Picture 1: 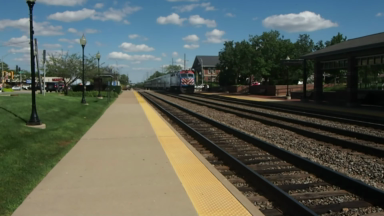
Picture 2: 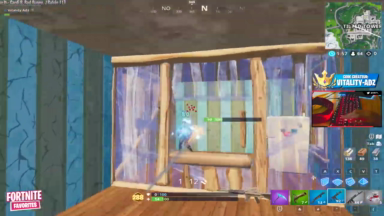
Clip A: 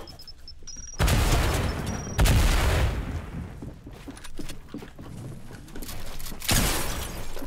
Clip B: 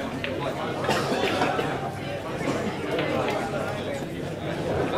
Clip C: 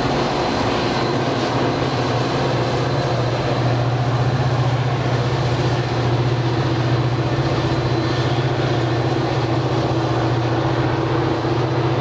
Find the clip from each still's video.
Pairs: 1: C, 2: A